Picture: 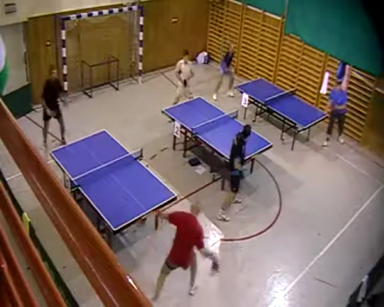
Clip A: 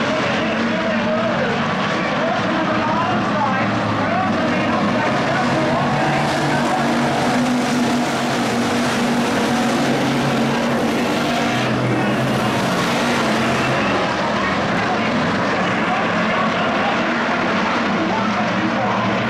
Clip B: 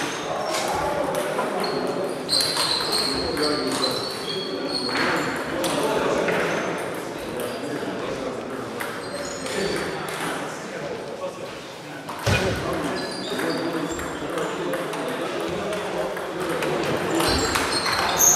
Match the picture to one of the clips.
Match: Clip B